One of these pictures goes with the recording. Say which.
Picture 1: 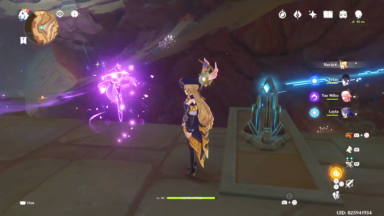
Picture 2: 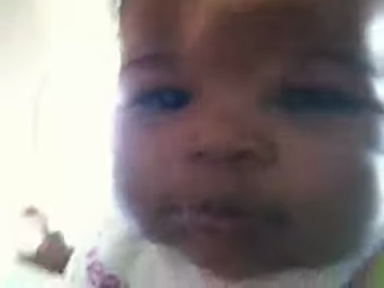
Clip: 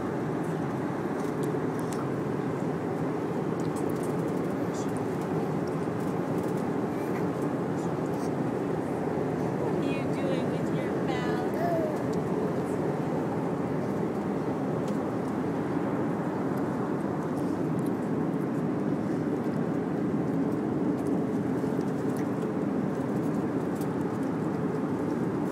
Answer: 2